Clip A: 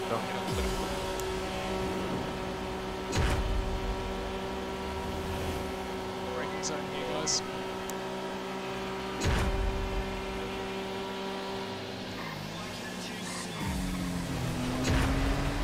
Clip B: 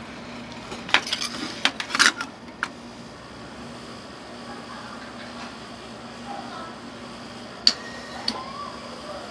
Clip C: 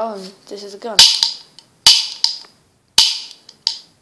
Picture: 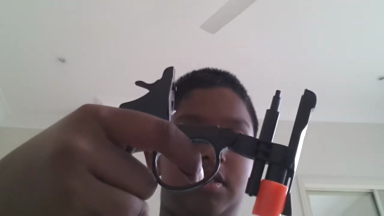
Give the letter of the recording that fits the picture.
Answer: C